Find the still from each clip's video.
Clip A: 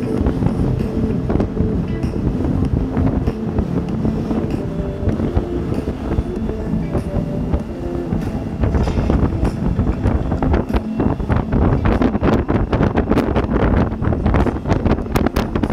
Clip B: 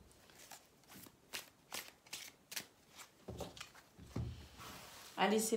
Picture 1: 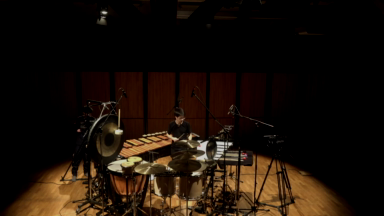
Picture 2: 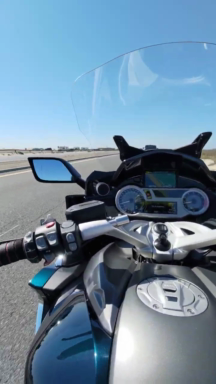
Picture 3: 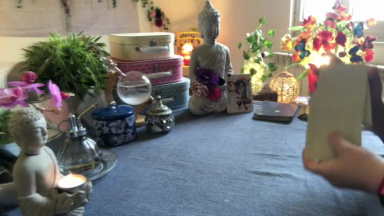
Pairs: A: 2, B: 3